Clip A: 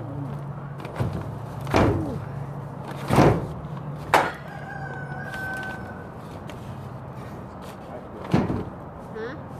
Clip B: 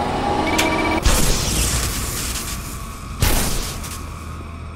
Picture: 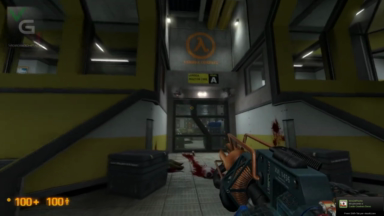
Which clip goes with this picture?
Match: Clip B